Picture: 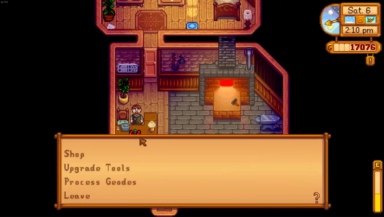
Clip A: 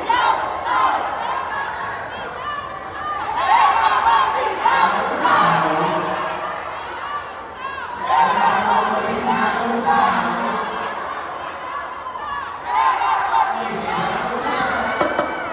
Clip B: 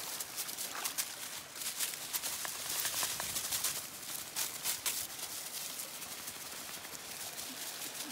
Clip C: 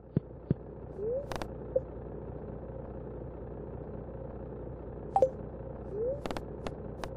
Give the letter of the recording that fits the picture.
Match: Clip C